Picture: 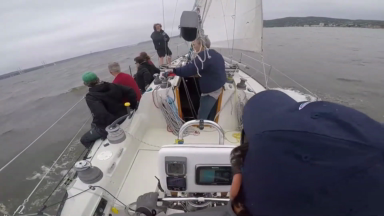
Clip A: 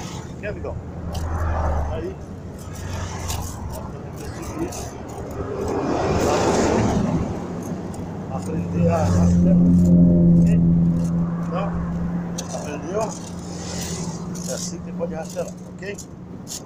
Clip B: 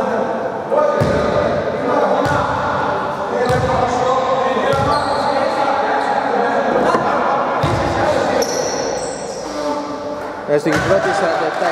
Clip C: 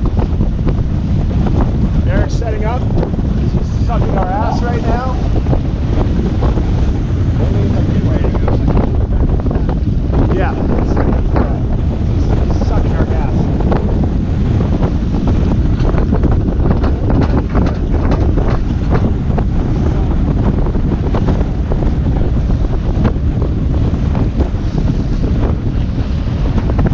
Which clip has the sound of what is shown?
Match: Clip C